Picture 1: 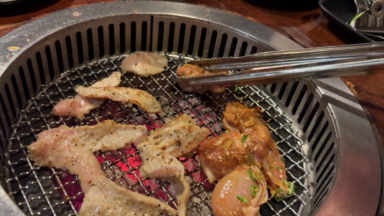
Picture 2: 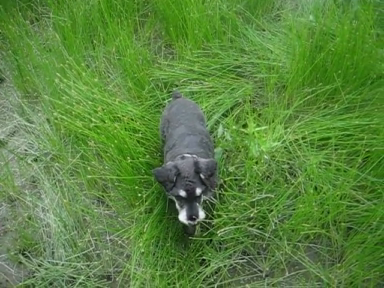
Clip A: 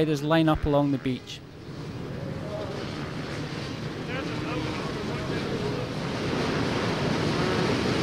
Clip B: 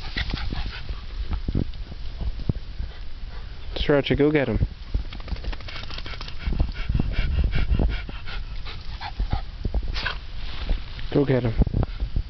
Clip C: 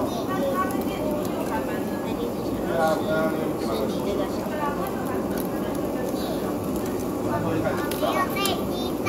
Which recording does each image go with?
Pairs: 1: C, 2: B